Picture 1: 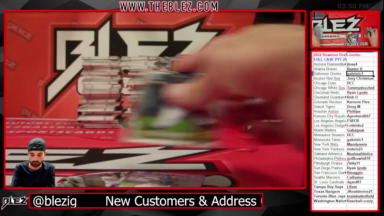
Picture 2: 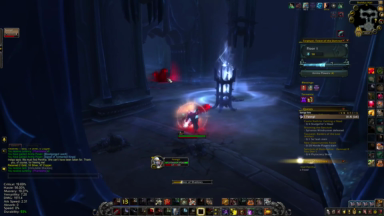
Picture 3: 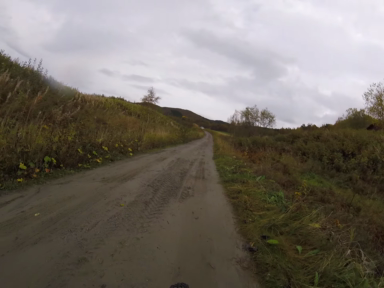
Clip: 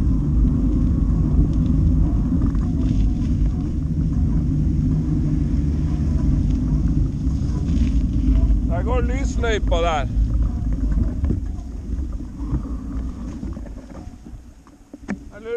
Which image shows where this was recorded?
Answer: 3